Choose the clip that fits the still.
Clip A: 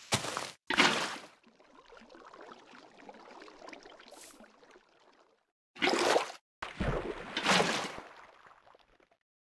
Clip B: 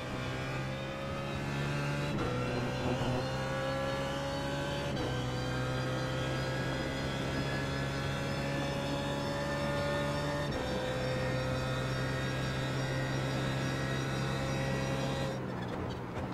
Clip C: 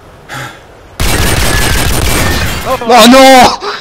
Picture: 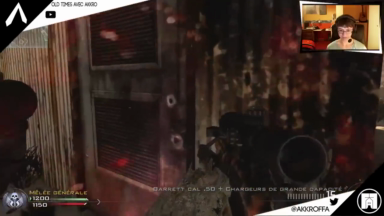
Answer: C